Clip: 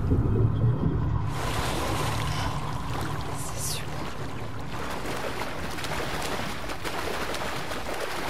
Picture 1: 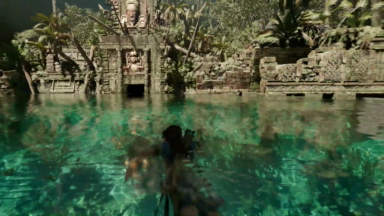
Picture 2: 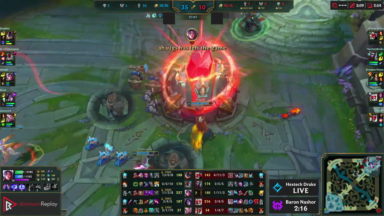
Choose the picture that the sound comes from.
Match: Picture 1